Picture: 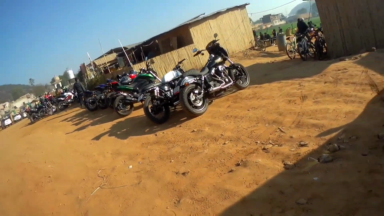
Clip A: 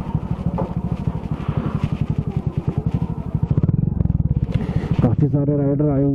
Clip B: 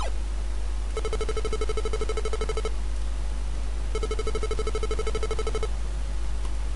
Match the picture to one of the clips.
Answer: A